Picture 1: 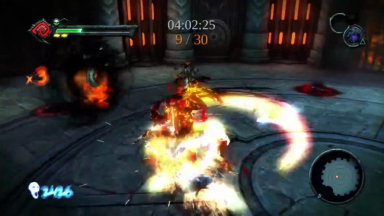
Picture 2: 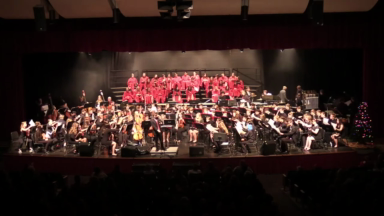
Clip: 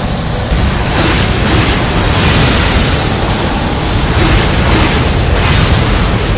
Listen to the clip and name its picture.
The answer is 1